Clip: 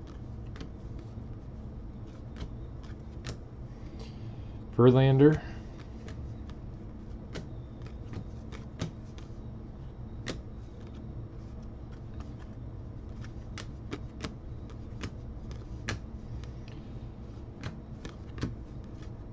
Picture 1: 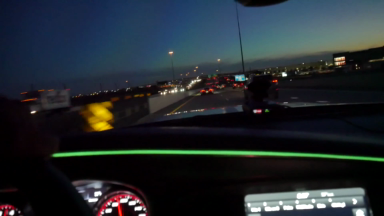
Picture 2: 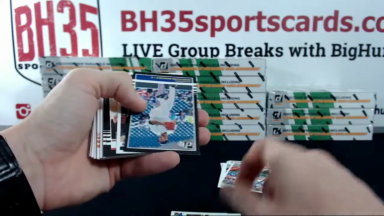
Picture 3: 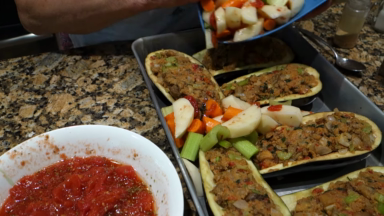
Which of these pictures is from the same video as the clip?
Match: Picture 2